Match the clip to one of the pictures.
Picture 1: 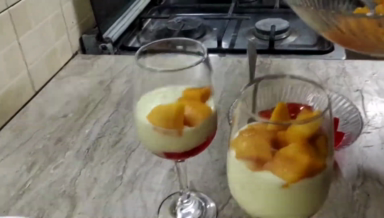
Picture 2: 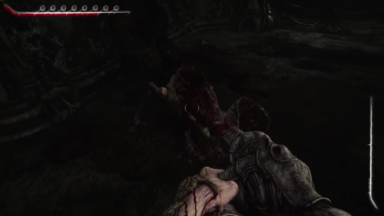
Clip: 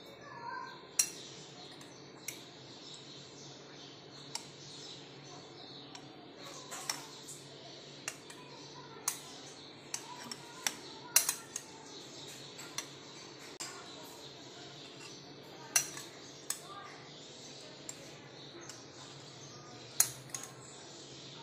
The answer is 1